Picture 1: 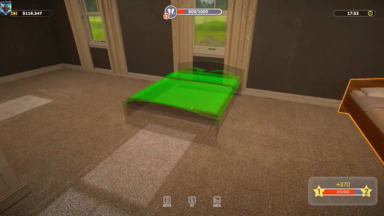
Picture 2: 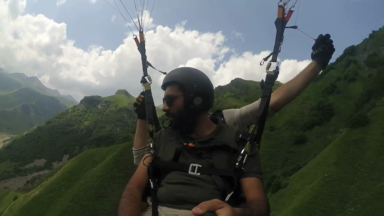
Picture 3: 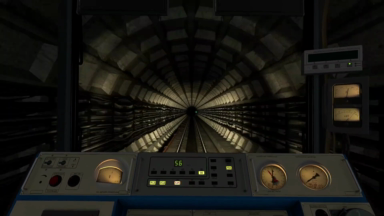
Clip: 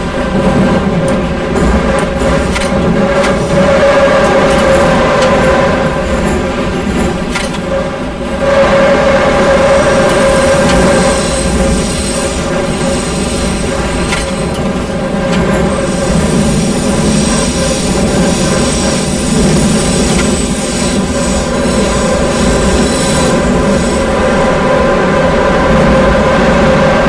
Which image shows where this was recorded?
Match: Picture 3